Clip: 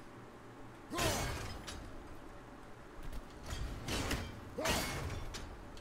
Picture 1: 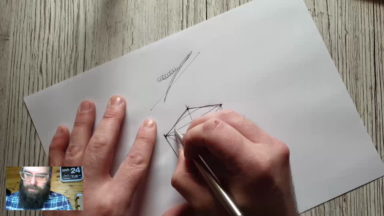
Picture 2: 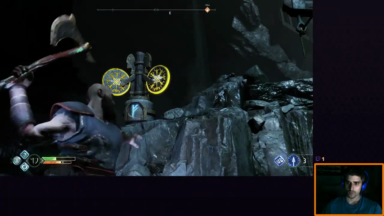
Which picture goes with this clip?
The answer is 2